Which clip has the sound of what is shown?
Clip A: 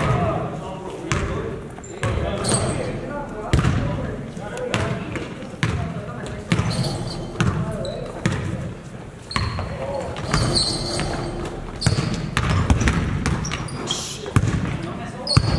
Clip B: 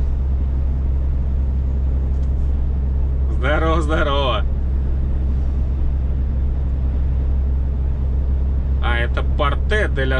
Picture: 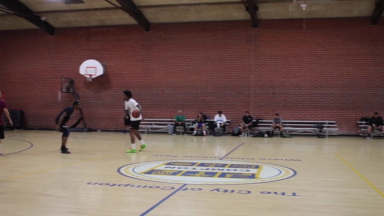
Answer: A